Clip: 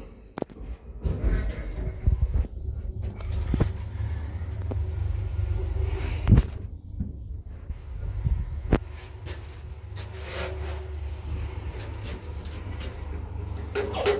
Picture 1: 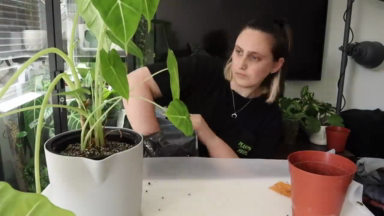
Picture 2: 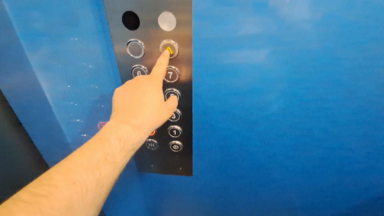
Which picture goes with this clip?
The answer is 2